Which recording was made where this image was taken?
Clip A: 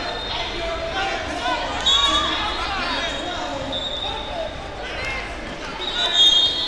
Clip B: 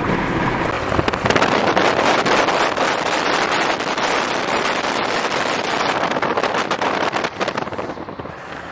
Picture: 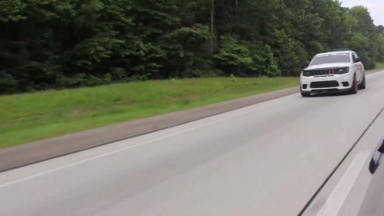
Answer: B